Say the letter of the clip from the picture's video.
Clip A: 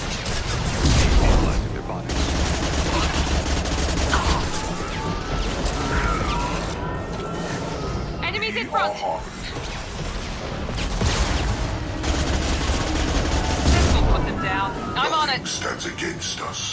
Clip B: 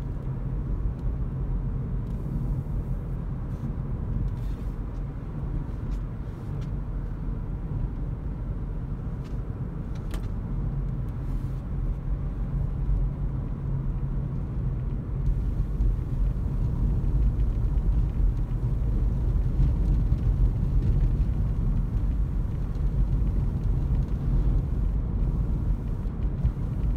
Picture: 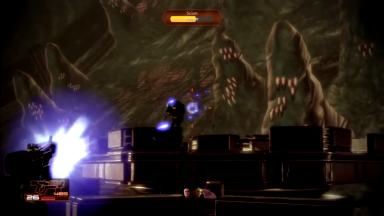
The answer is A